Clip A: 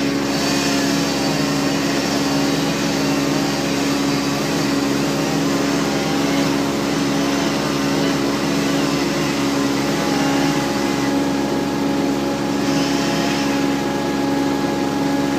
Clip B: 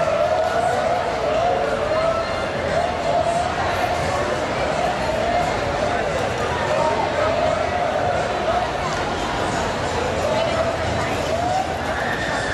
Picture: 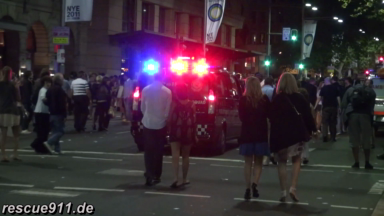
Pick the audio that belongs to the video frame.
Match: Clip B